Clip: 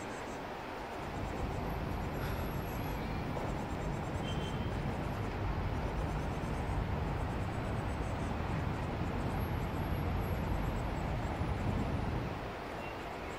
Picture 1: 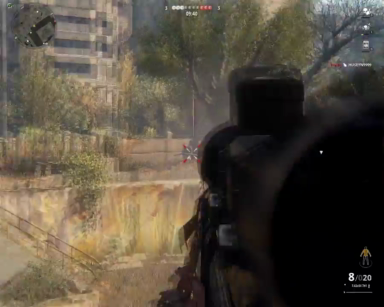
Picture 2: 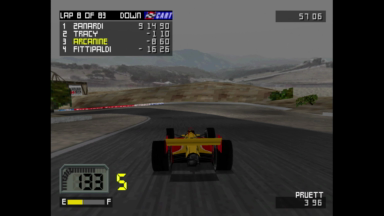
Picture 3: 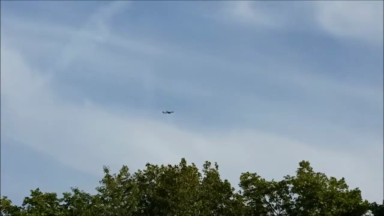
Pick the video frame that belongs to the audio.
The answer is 3